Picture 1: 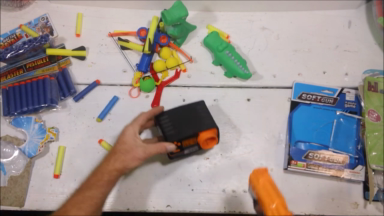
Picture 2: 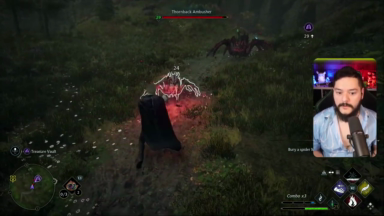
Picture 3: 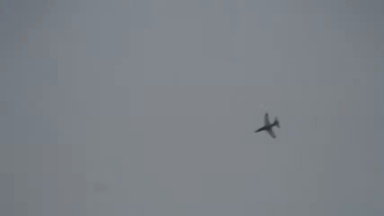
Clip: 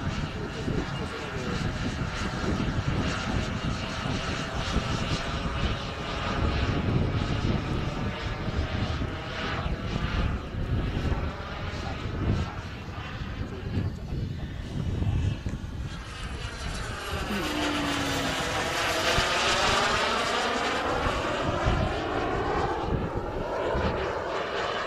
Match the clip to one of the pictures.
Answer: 3